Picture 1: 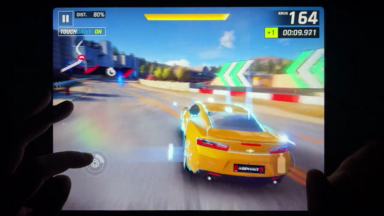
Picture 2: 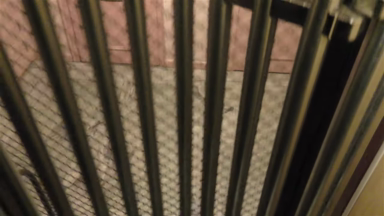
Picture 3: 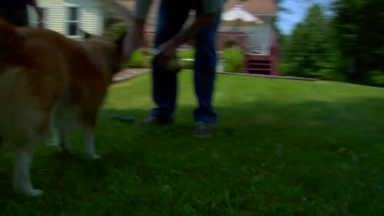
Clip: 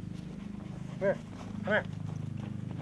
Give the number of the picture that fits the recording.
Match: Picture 3